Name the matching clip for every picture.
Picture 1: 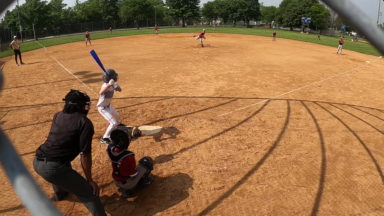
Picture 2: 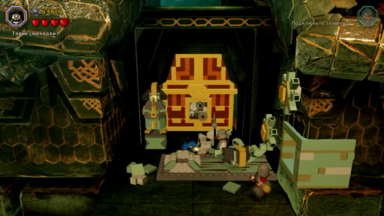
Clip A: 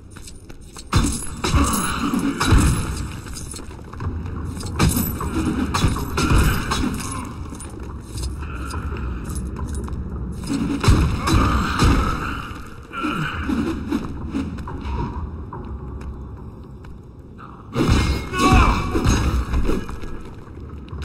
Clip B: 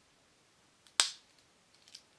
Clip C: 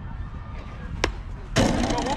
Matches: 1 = C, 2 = A